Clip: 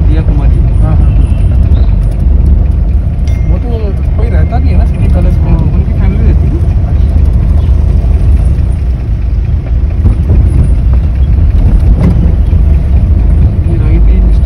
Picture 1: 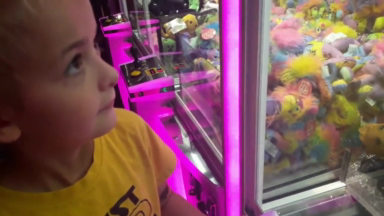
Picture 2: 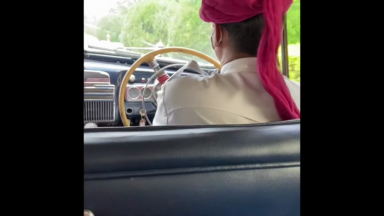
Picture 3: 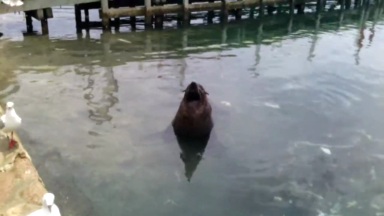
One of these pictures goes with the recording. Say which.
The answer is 2